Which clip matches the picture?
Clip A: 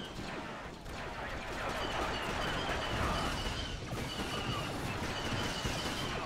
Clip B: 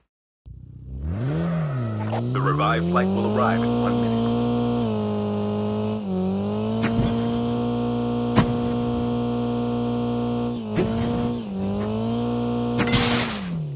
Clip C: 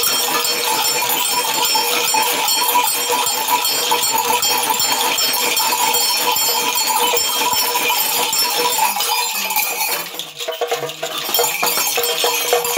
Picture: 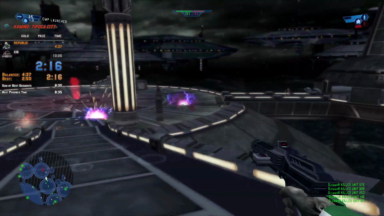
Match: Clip A